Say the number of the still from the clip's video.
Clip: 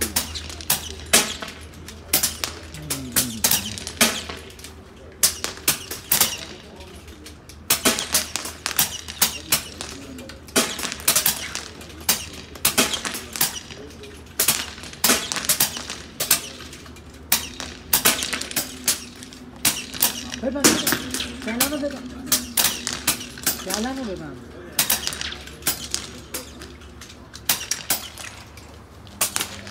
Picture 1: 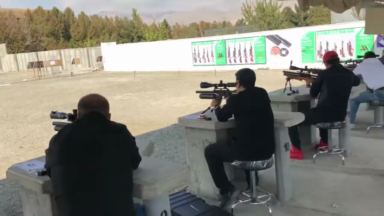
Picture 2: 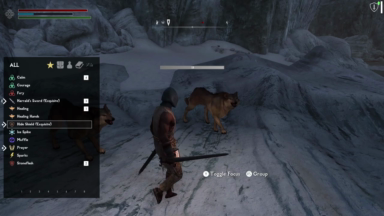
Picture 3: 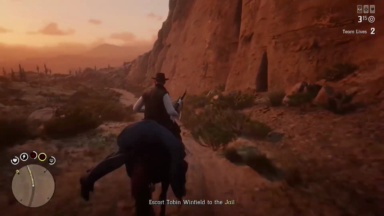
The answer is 1